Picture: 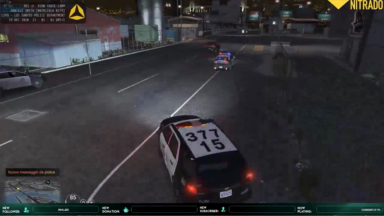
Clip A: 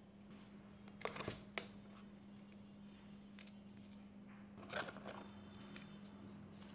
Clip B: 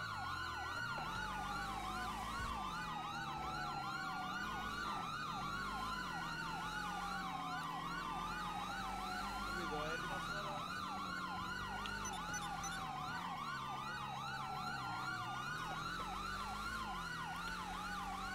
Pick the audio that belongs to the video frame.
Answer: B